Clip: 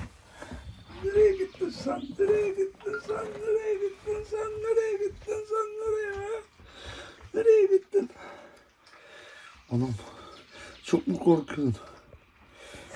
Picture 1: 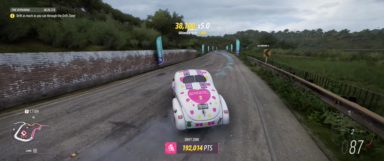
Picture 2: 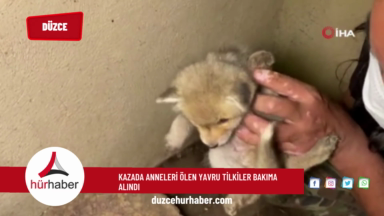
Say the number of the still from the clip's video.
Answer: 2